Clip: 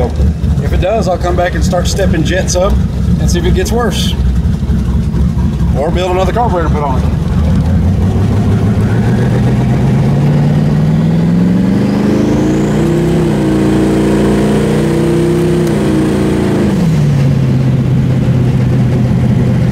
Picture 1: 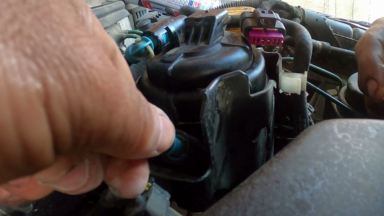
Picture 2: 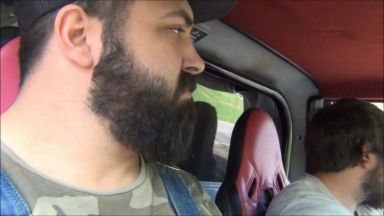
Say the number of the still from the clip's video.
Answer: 2